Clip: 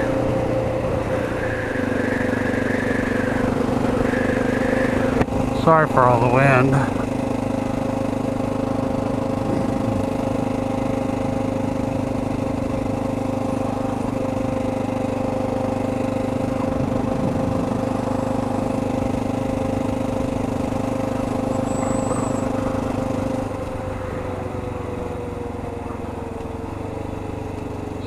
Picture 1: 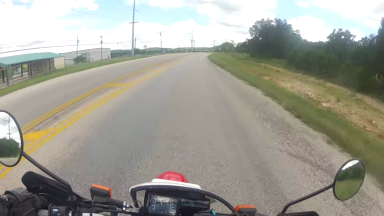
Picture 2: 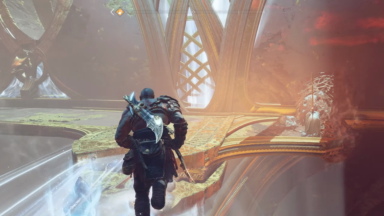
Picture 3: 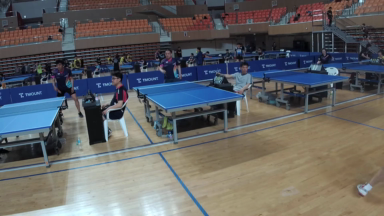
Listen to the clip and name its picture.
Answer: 1